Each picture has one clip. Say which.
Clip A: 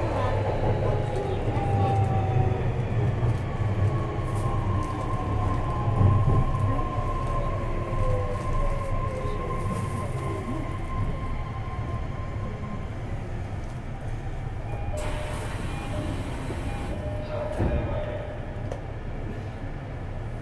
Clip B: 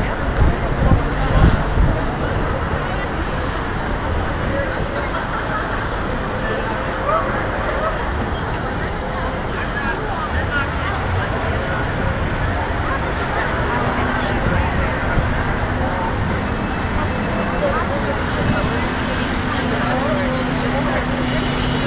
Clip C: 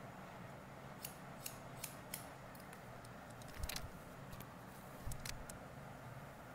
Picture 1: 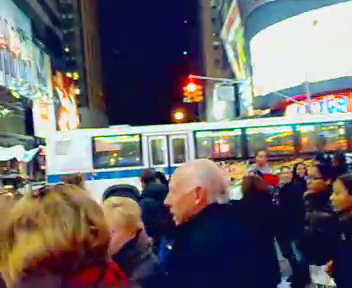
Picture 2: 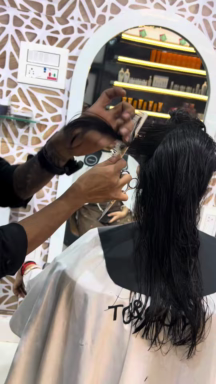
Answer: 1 B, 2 C